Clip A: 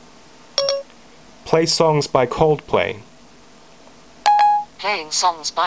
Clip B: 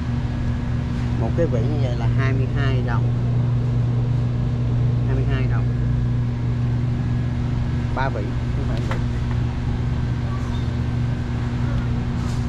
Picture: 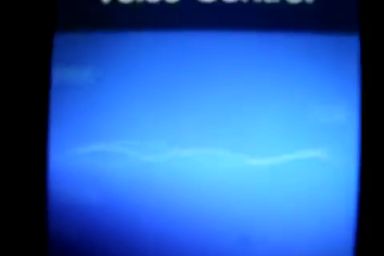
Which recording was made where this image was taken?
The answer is A